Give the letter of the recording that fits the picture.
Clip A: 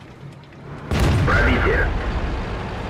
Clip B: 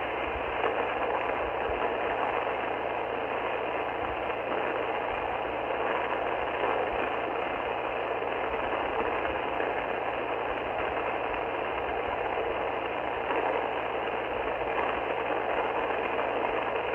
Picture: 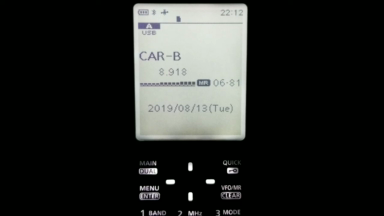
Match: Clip B